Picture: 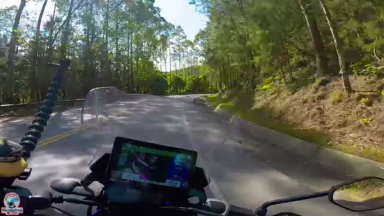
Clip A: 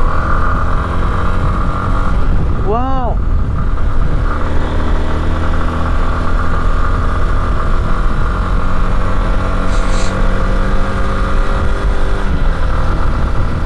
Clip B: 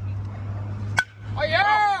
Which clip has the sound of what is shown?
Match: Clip A